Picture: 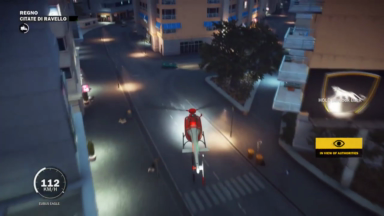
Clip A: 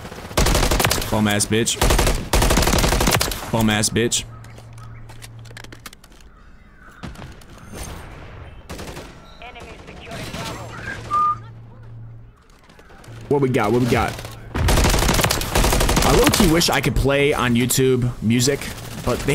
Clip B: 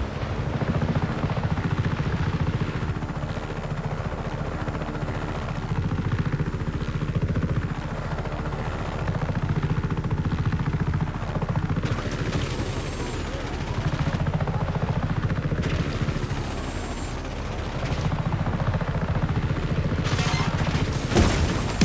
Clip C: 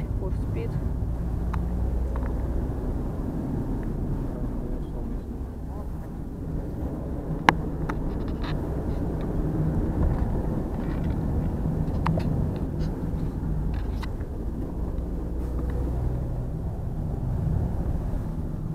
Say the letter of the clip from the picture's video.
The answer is B